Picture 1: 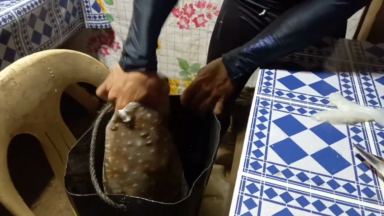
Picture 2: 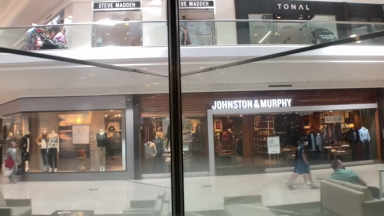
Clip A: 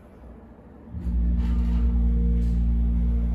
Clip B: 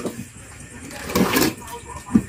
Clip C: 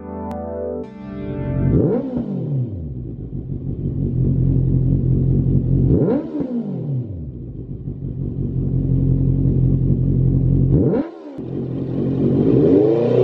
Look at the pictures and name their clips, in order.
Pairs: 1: B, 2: A